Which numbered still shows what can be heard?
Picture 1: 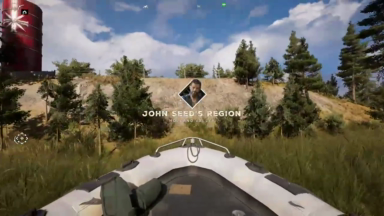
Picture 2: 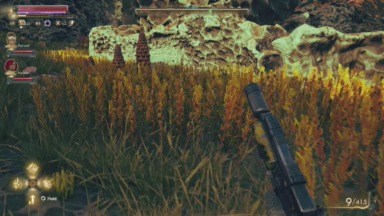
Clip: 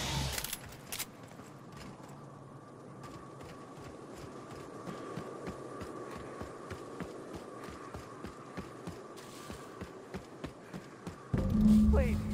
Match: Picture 2